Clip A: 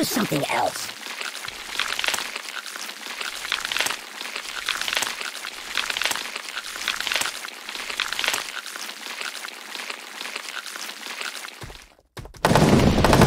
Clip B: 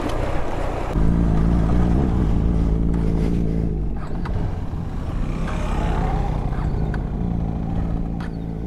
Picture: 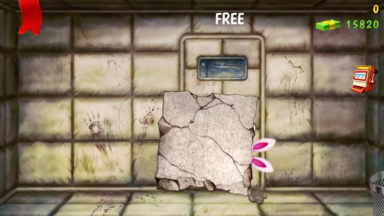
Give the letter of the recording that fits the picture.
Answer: A